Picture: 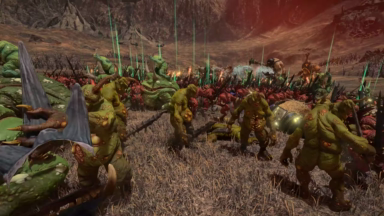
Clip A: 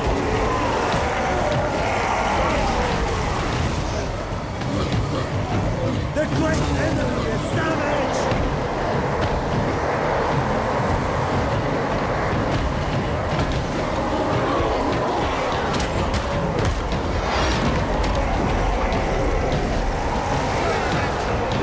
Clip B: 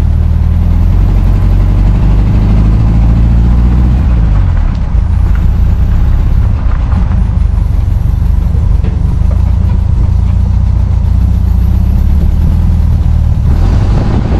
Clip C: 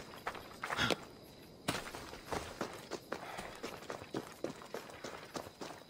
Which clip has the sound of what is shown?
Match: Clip A